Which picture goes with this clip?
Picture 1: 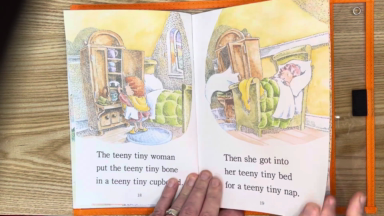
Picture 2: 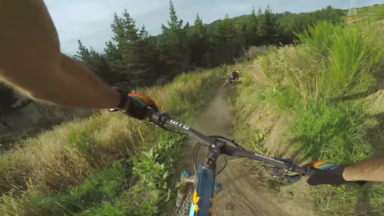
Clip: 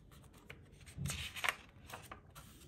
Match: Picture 1